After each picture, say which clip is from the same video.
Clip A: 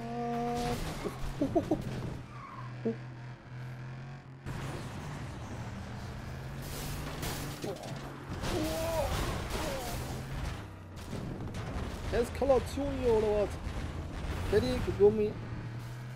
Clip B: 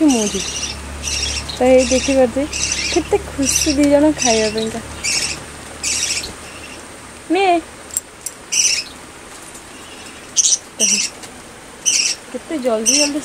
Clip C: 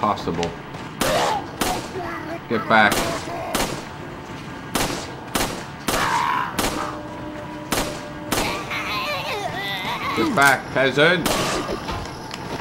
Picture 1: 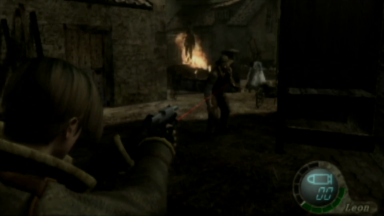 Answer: C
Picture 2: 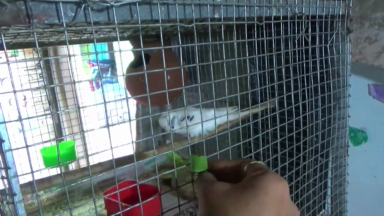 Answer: B